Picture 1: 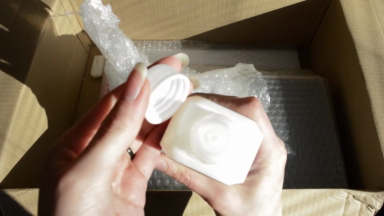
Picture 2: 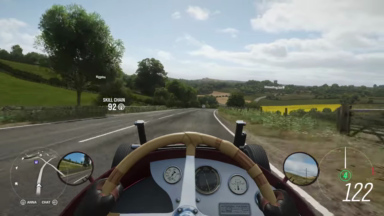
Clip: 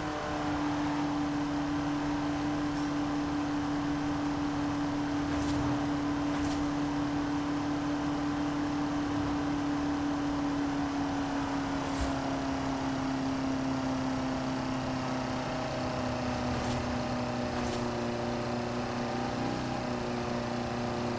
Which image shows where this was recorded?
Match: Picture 2